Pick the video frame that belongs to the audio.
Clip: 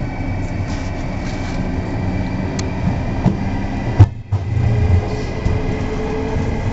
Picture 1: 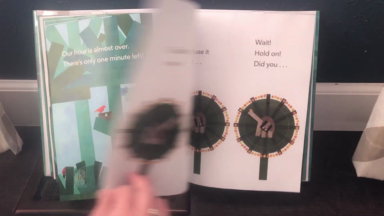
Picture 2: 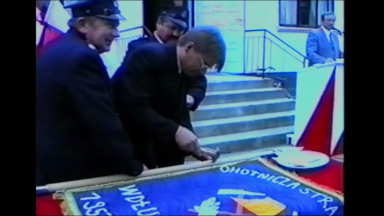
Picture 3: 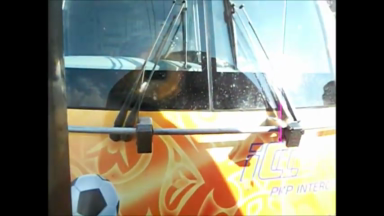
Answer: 3